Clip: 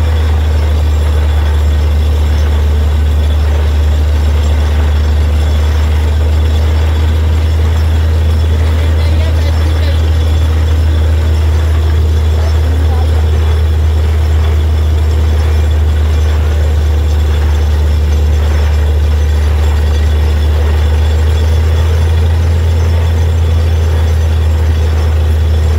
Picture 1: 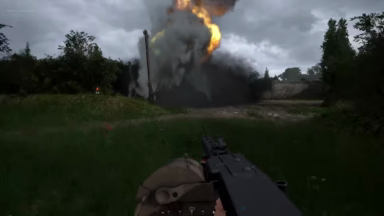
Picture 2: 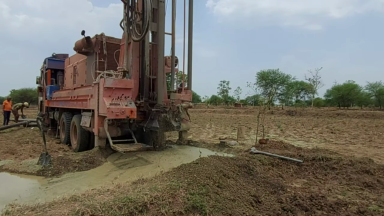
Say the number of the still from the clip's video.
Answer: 2